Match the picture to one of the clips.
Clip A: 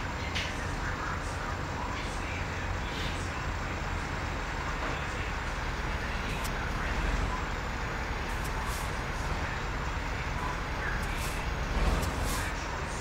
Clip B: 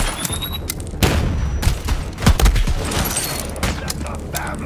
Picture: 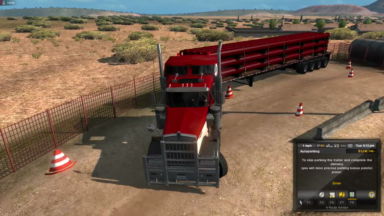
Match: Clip A